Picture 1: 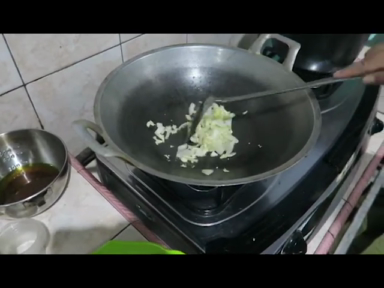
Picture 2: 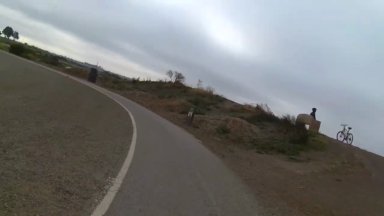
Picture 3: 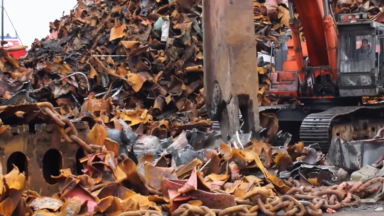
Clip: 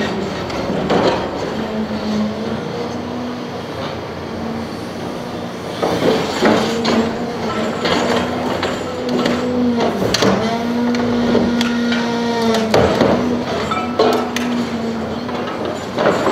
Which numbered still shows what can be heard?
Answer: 3